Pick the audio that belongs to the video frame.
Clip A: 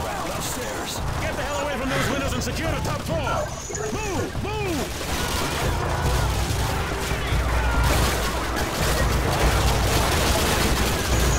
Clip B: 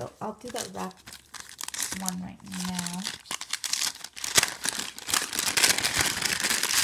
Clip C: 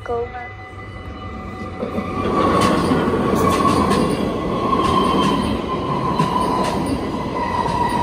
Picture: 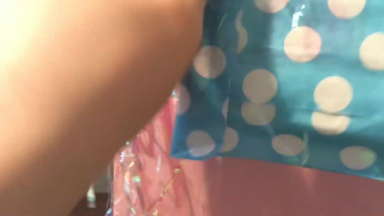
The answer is B